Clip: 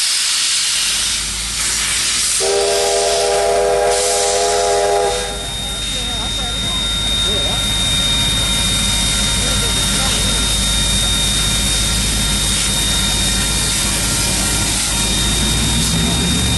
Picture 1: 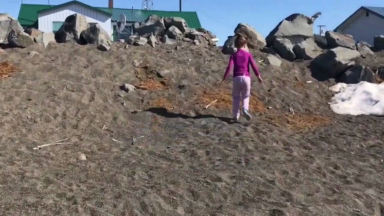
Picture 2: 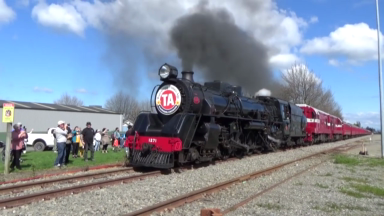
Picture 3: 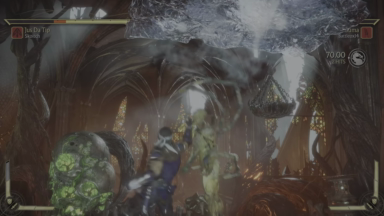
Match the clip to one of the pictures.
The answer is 2